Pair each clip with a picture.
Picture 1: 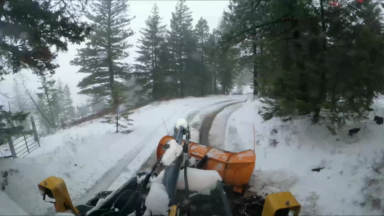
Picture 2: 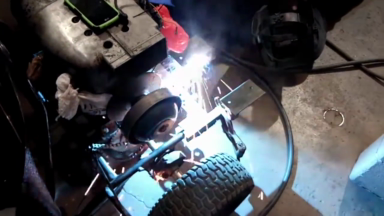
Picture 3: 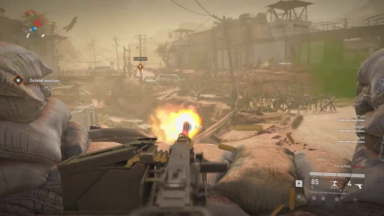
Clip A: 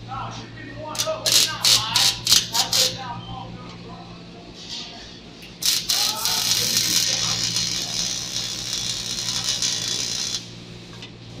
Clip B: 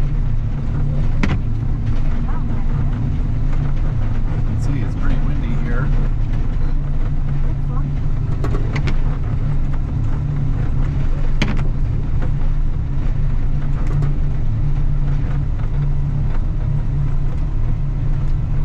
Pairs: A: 2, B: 1